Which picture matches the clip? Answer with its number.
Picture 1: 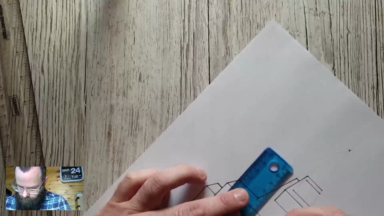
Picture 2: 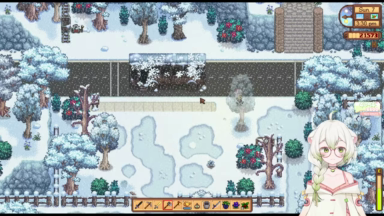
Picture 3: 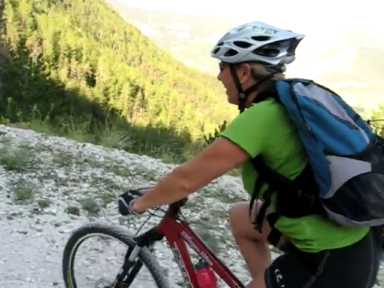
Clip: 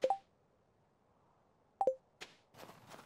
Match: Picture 2